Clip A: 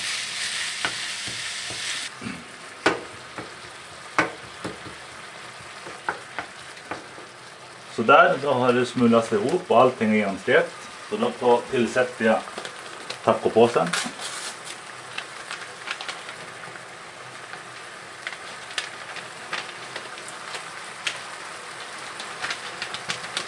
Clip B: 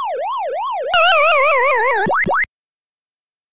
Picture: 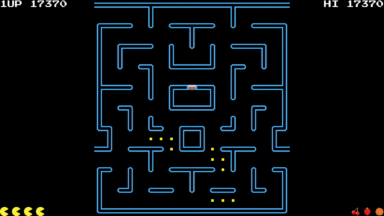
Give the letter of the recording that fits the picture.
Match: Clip B